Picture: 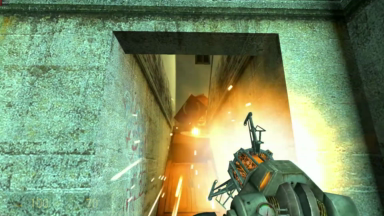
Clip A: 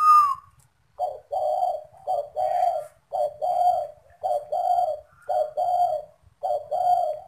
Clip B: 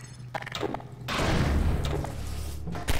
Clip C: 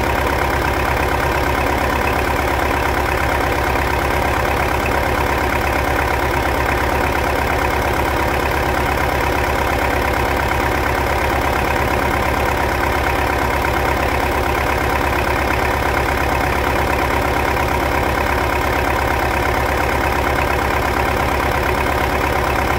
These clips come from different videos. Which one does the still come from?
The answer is B